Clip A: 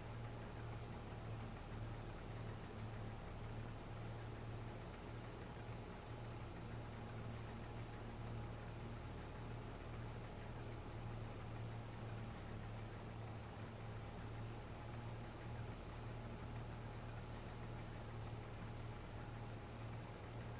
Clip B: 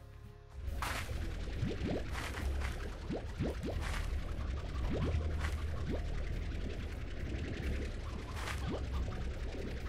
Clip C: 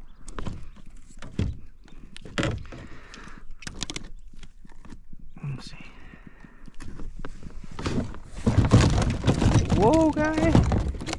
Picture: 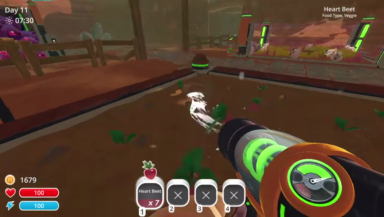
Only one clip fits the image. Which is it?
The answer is B